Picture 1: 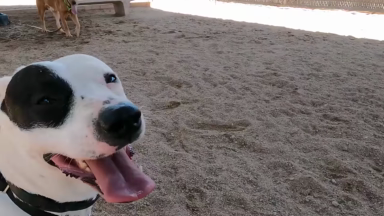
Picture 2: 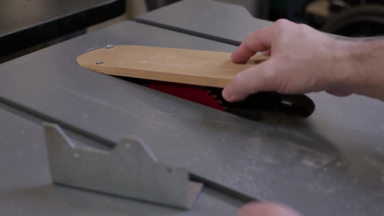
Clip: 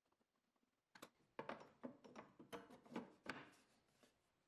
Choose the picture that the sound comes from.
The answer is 2